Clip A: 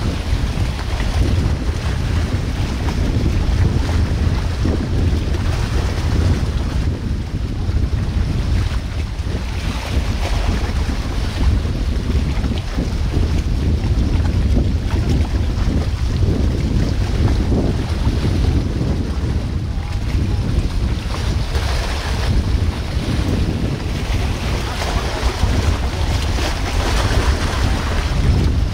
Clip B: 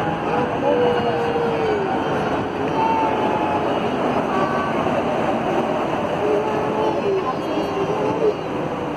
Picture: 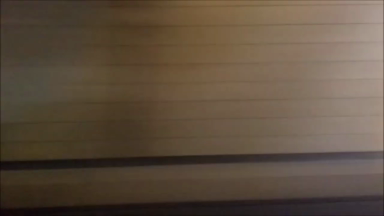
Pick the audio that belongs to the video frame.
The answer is B